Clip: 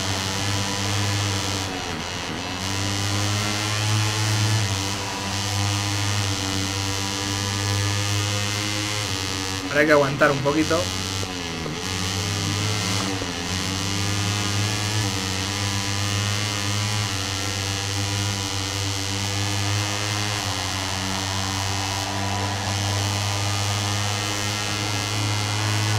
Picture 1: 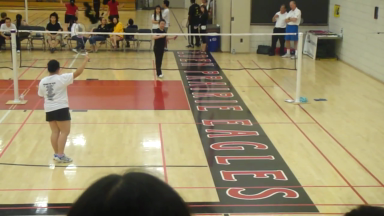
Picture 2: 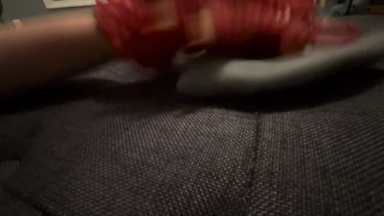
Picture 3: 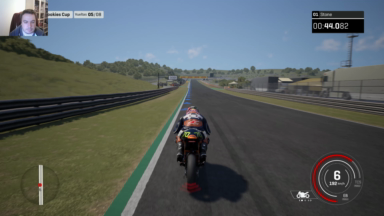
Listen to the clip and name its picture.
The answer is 3